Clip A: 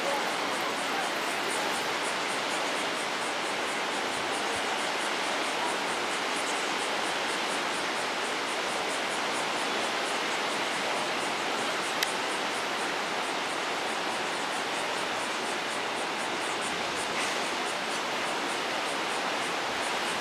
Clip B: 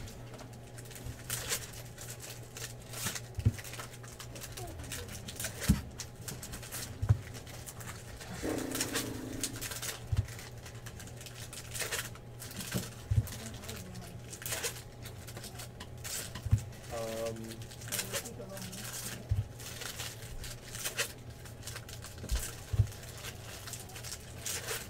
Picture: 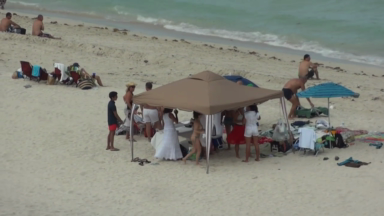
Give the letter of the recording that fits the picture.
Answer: A